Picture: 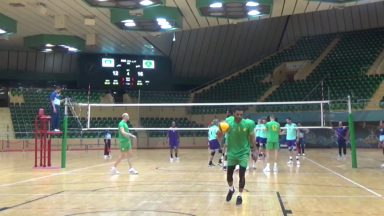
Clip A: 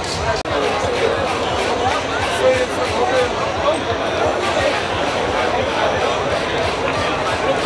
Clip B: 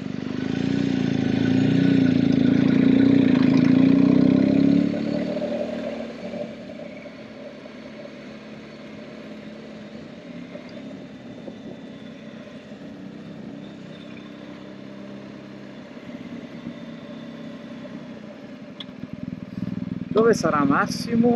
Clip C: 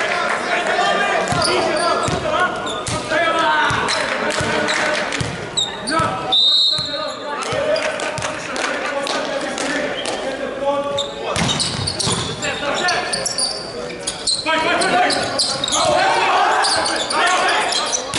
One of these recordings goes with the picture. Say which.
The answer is C